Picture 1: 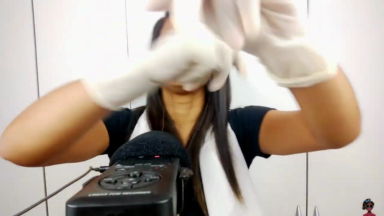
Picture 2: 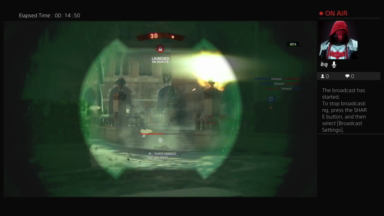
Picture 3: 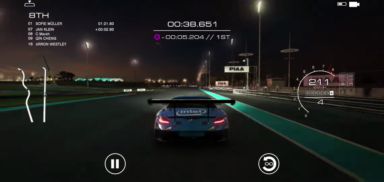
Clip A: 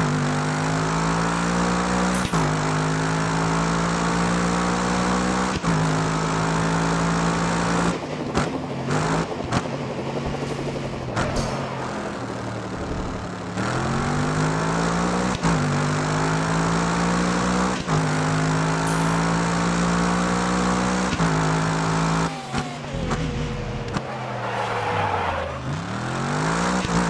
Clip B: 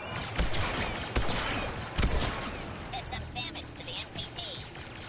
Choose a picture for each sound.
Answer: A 3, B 2